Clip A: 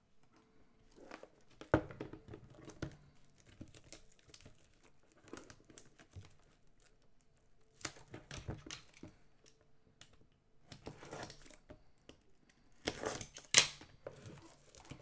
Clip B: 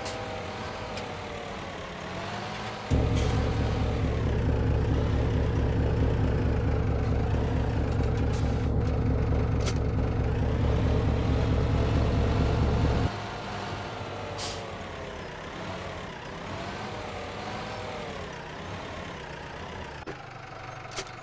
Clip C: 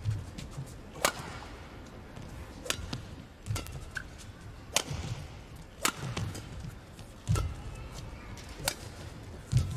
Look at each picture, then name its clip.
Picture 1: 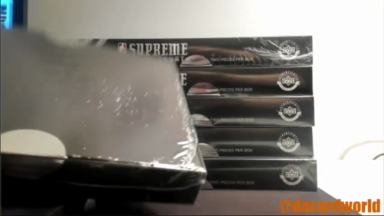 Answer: A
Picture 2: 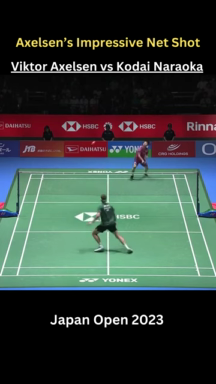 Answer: C